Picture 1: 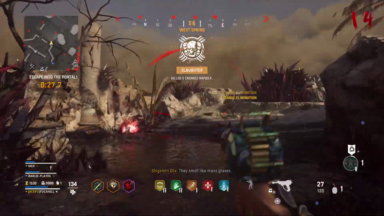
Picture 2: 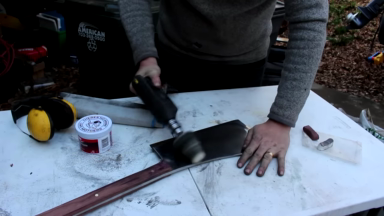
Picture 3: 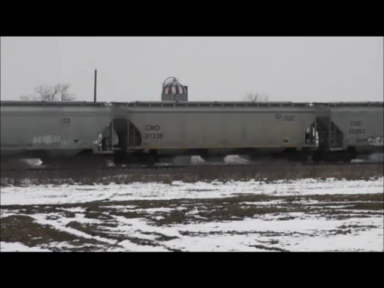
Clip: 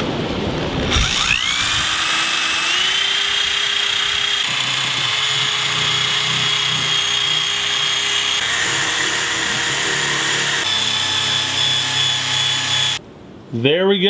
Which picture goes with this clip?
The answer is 2